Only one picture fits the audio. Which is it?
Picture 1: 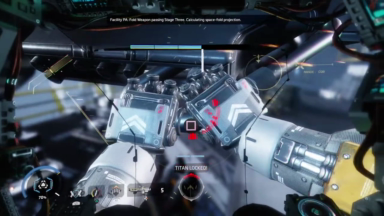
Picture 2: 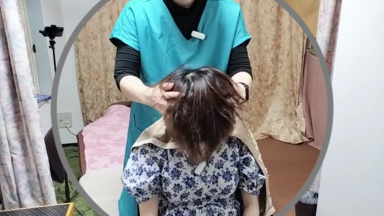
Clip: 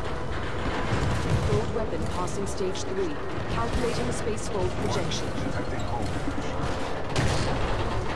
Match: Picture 1